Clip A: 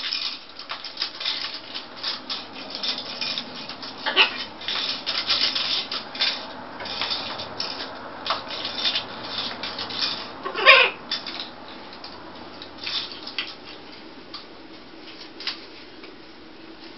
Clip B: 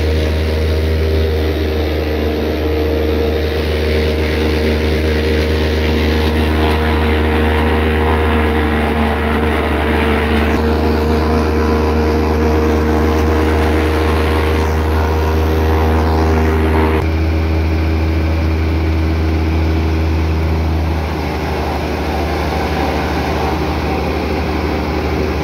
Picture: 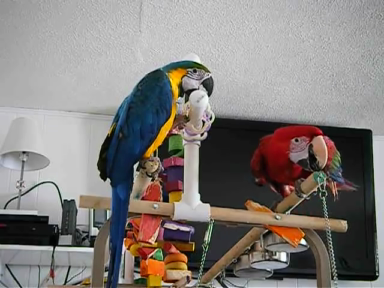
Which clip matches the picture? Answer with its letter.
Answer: A